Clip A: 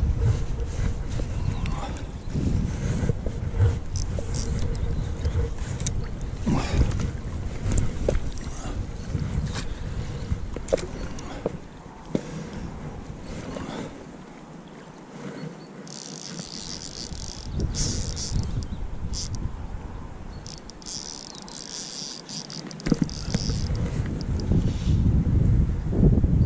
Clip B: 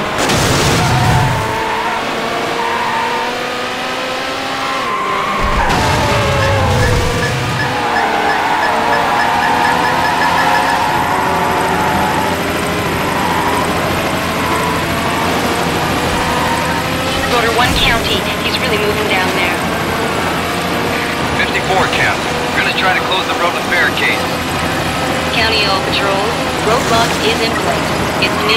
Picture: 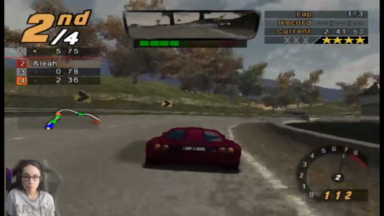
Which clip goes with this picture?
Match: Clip B